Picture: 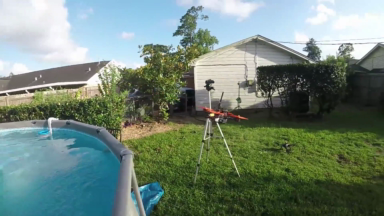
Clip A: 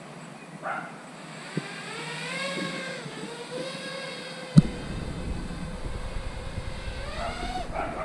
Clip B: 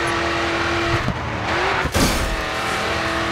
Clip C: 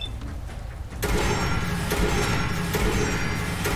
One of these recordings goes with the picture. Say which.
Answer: A